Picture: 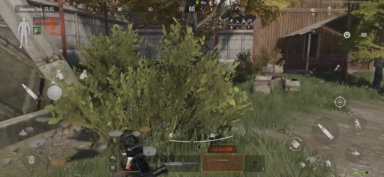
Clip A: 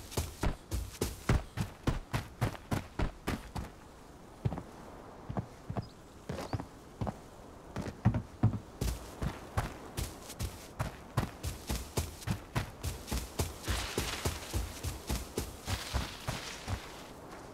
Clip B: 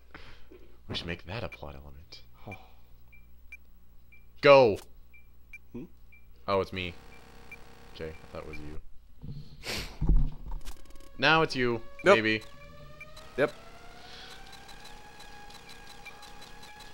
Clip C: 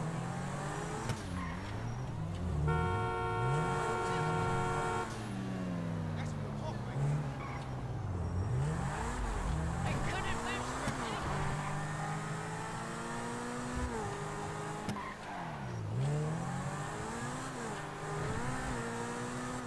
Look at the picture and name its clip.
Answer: A